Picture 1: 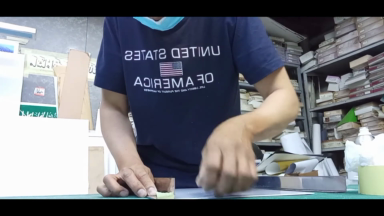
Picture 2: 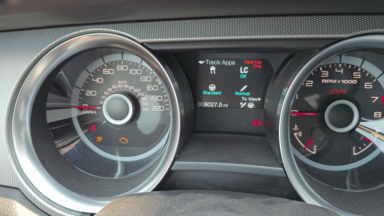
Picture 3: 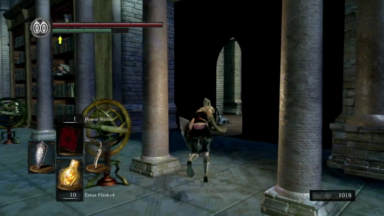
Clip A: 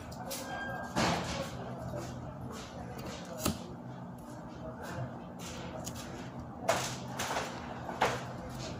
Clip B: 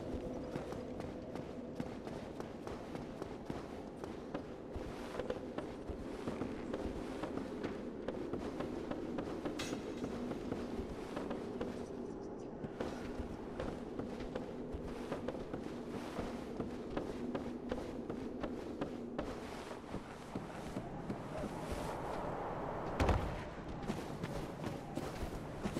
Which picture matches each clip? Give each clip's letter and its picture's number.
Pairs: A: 1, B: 3